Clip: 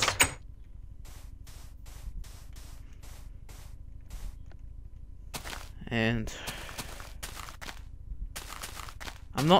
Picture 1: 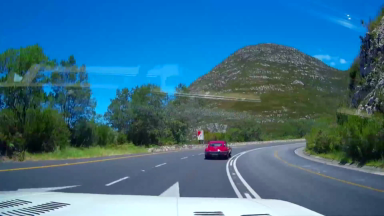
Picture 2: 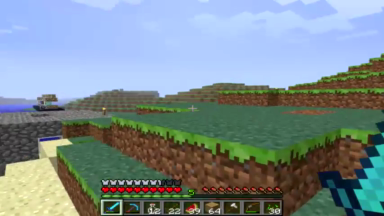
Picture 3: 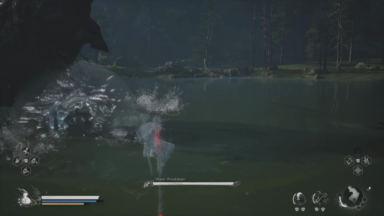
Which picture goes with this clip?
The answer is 2